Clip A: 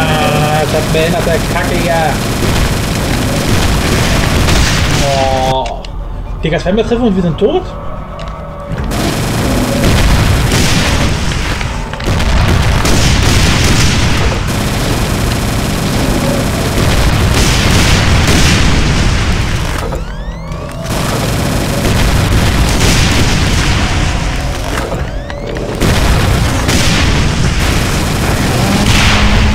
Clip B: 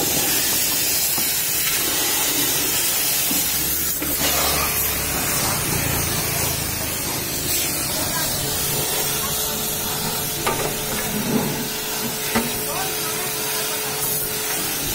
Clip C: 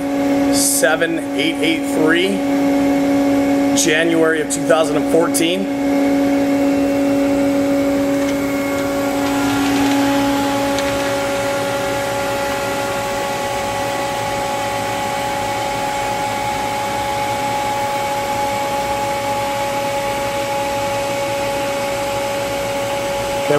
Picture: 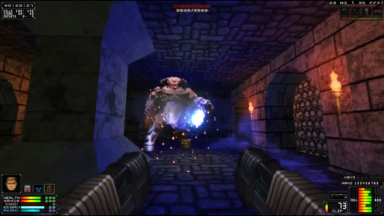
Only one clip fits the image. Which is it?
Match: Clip A